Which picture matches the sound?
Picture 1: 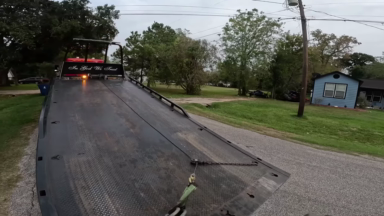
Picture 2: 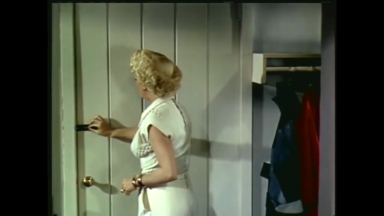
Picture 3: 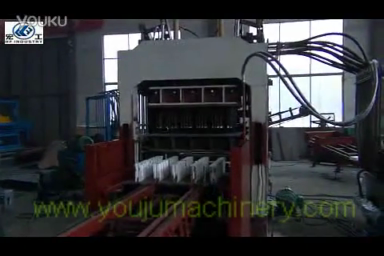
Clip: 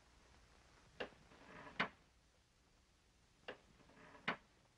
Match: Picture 2